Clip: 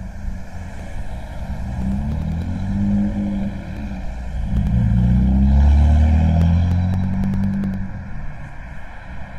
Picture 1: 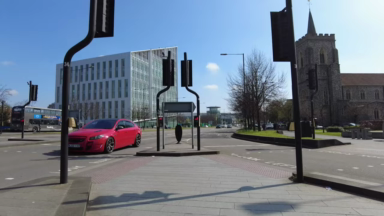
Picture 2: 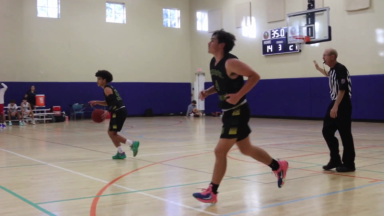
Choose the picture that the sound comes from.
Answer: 1